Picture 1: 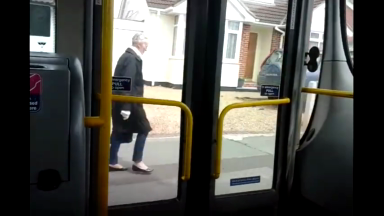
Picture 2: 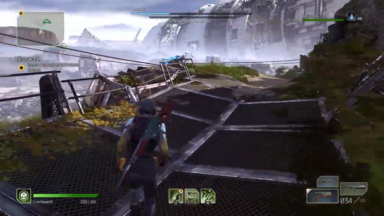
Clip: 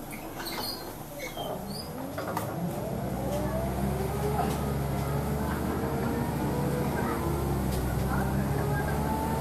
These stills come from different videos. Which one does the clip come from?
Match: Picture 1